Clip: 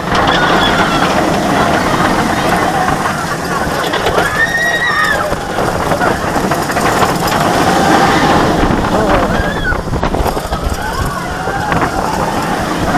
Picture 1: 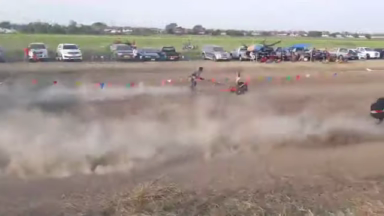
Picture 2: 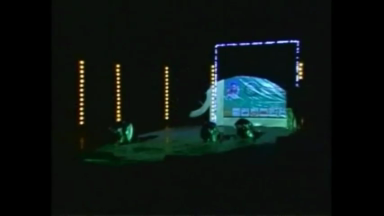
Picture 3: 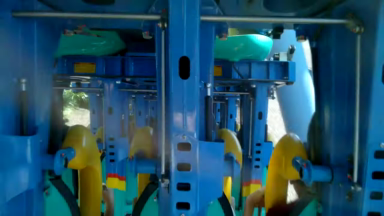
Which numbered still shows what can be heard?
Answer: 3